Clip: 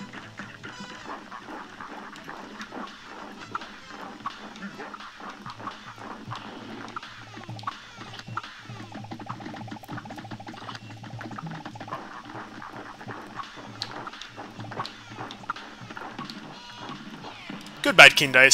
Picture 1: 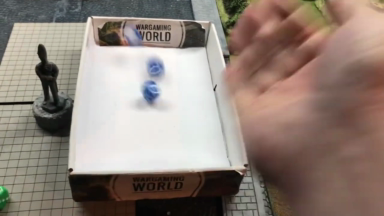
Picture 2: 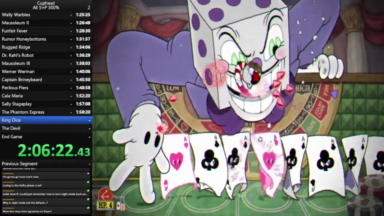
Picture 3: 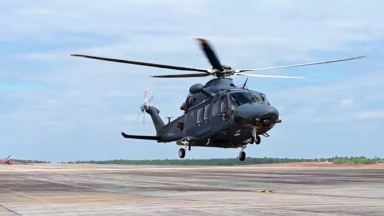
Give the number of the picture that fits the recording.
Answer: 2